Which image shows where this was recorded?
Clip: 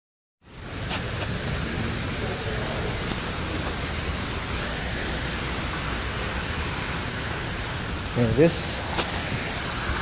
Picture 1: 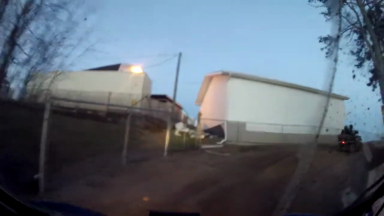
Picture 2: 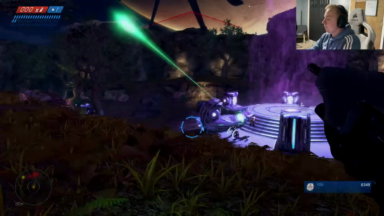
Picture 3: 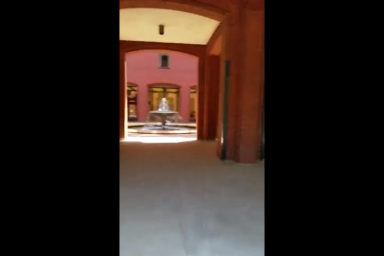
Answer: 3